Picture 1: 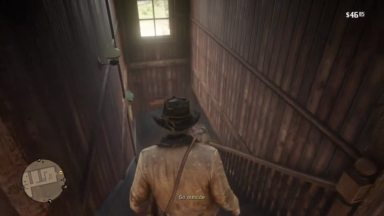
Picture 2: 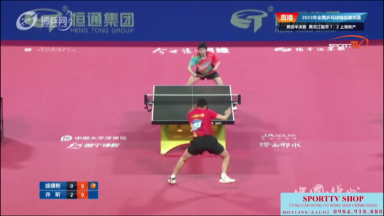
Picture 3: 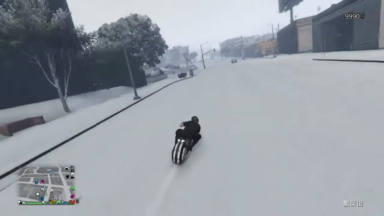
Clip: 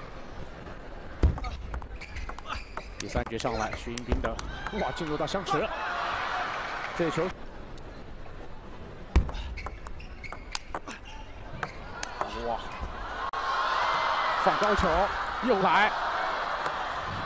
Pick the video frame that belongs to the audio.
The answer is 2